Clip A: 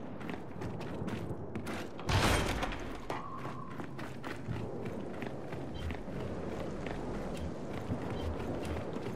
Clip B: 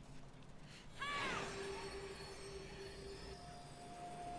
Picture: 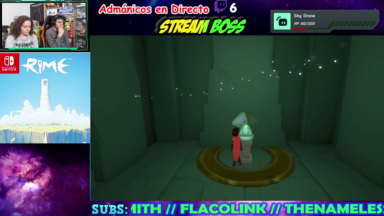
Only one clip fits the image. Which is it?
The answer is B